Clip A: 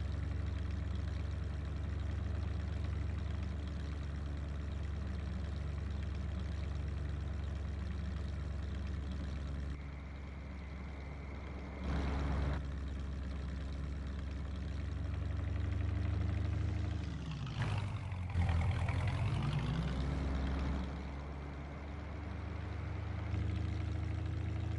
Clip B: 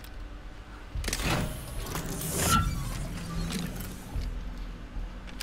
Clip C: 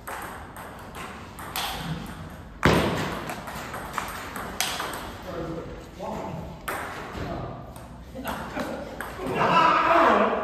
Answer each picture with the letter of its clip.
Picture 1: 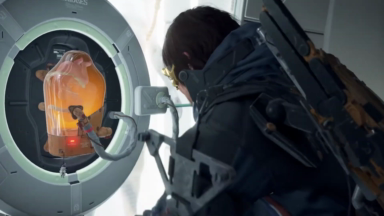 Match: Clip B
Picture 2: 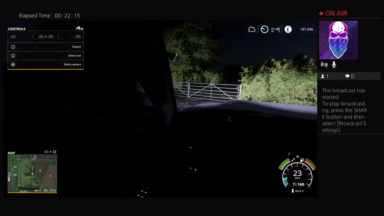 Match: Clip A